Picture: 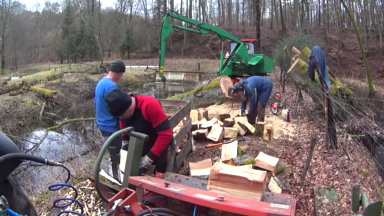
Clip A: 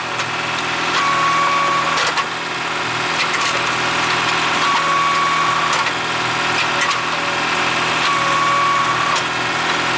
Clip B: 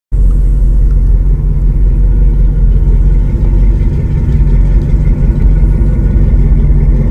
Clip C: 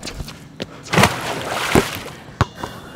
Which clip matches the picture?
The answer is A